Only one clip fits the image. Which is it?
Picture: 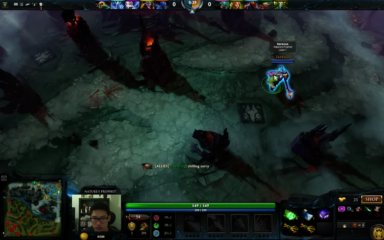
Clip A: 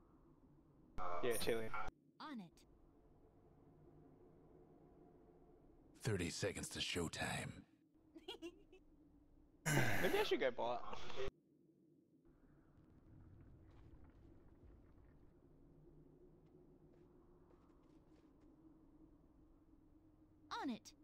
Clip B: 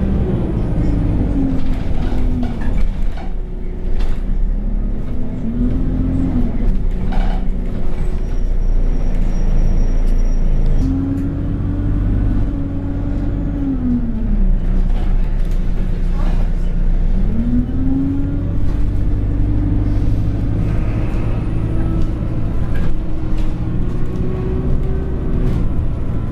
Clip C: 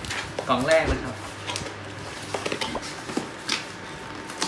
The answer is A